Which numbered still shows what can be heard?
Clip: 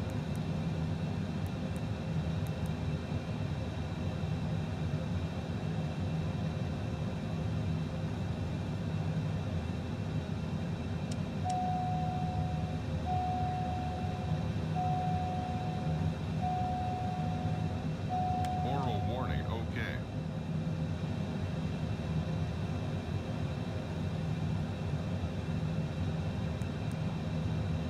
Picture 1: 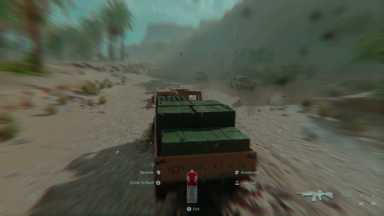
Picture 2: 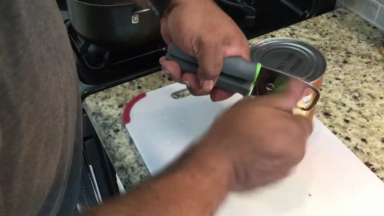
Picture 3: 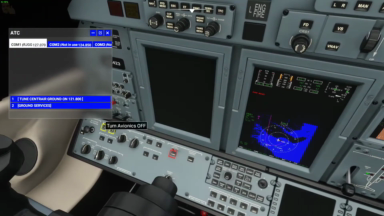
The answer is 3